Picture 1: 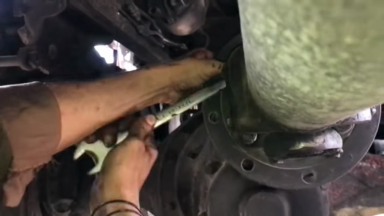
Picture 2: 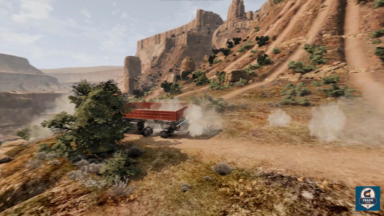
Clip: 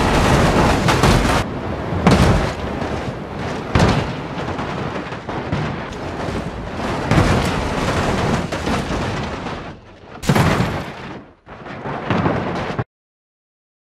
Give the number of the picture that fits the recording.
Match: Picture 2